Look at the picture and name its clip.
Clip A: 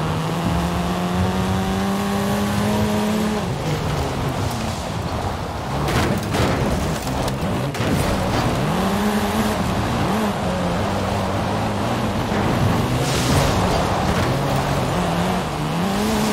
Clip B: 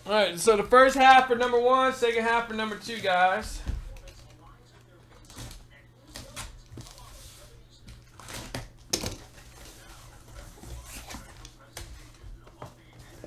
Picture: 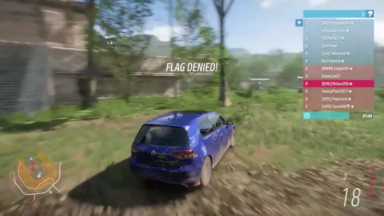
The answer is A